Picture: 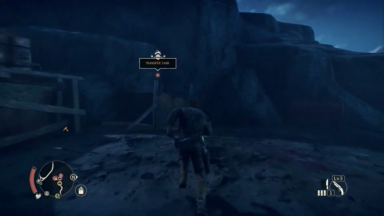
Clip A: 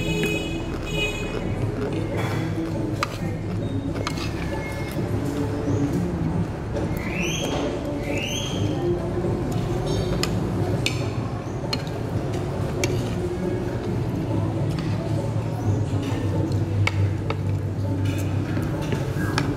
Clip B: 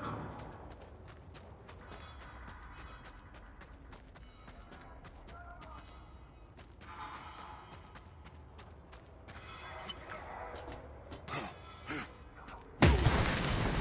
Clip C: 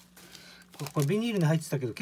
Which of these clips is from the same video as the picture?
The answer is B